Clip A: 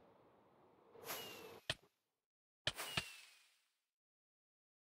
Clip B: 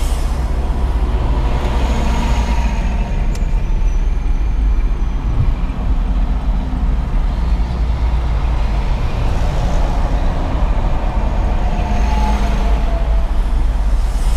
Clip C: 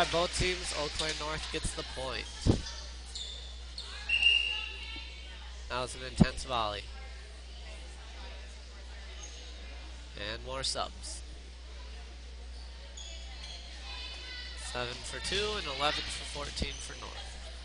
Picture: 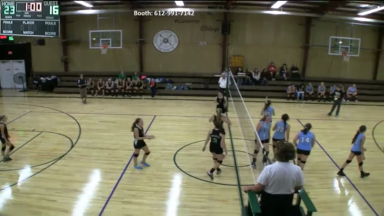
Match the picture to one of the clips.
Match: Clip C